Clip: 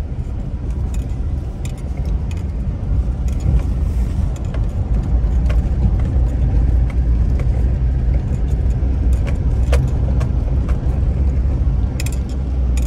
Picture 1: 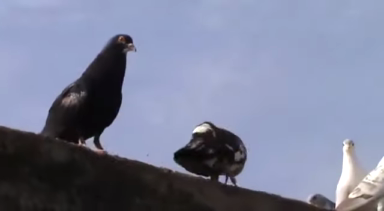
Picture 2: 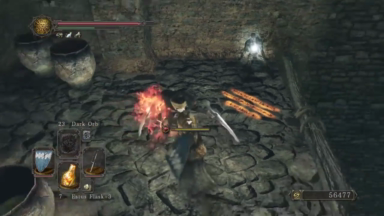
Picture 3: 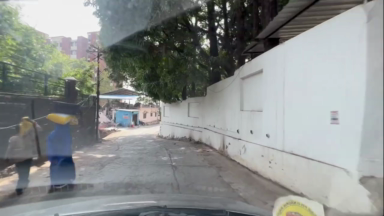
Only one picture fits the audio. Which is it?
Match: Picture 3